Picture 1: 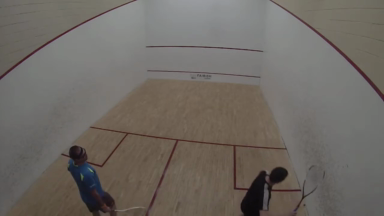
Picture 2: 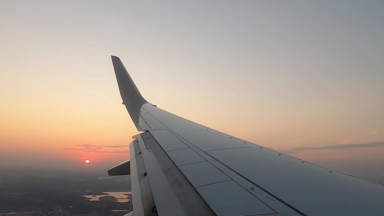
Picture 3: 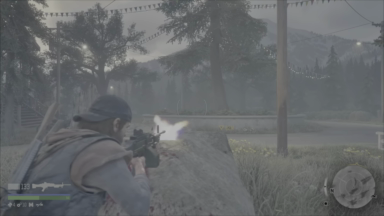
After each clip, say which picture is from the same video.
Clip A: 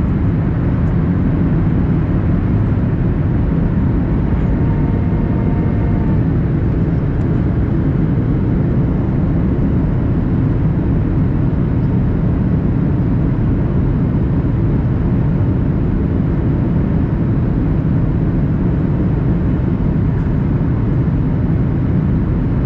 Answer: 2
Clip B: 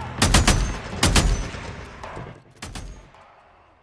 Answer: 3